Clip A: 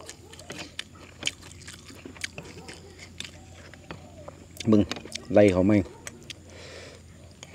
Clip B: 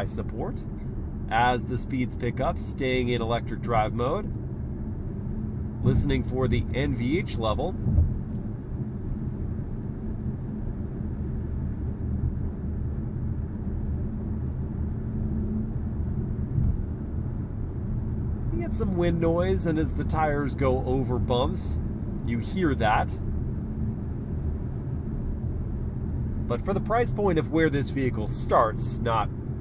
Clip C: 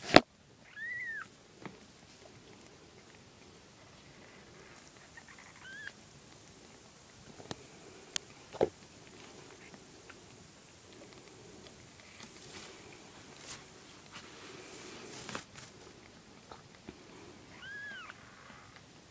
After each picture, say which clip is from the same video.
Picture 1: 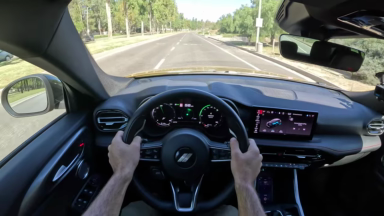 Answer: B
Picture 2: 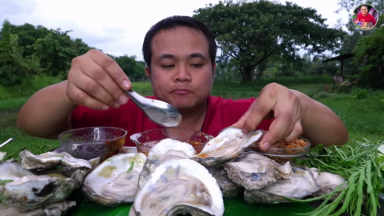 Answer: A